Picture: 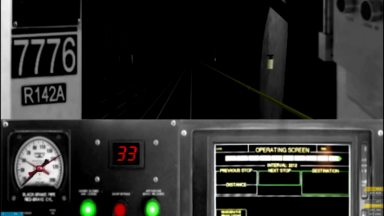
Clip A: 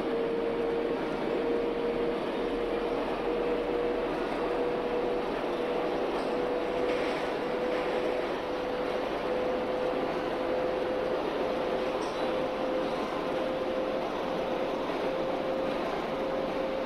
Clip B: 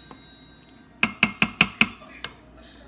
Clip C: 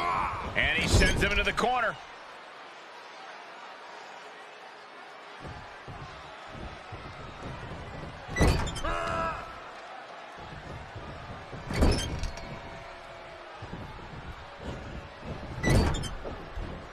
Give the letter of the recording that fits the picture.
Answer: A